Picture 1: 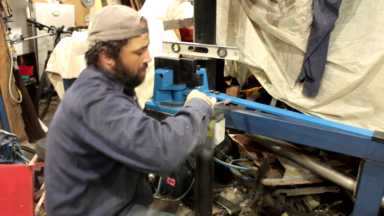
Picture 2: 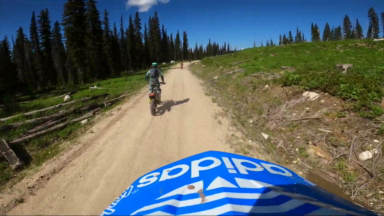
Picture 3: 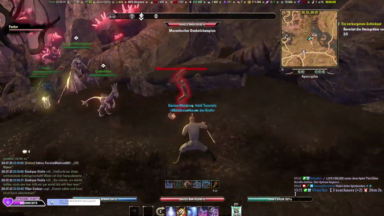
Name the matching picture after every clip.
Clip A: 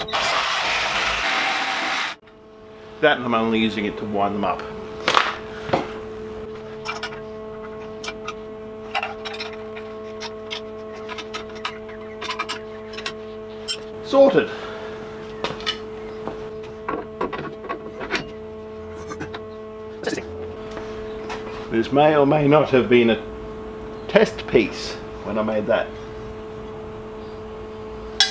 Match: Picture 1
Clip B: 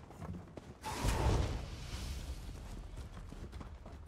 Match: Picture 3